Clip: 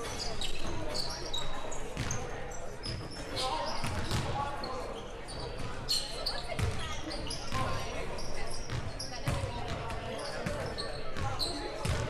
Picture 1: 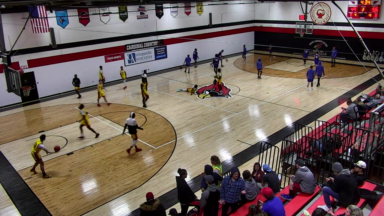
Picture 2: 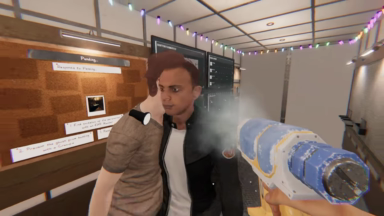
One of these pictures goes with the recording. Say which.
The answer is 1